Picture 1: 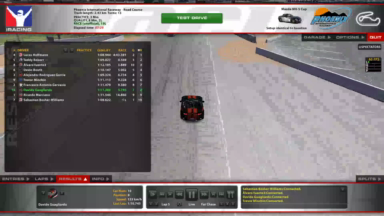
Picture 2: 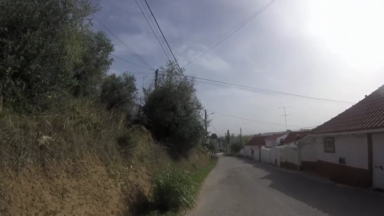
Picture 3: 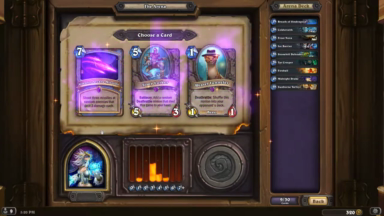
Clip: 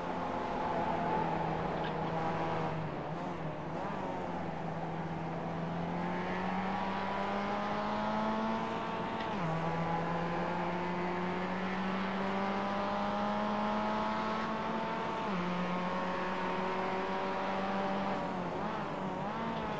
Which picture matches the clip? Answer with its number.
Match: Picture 1